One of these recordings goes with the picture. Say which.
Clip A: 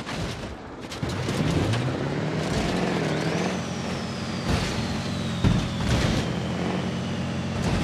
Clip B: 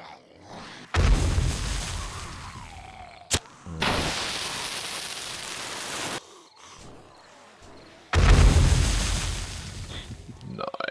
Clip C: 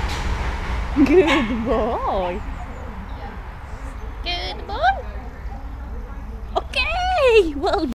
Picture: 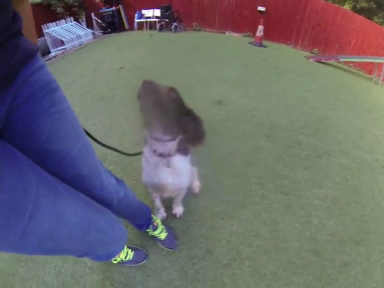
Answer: C